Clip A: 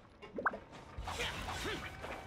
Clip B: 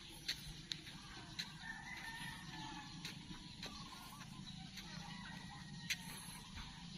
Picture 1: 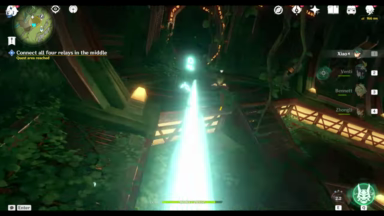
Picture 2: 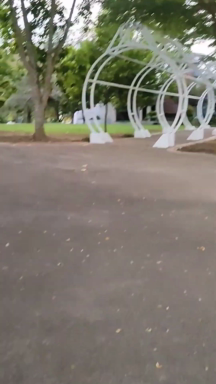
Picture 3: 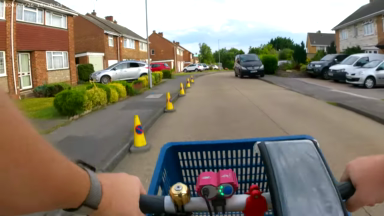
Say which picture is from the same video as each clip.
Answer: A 1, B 2